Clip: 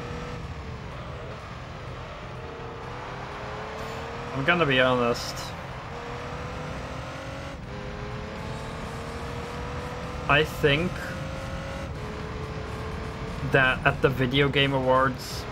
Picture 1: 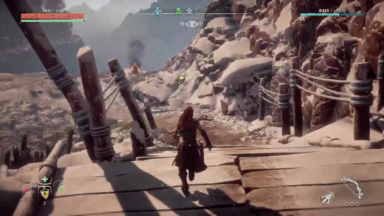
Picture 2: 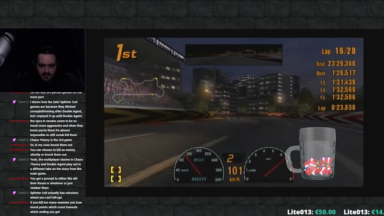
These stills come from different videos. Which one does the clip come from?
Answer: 2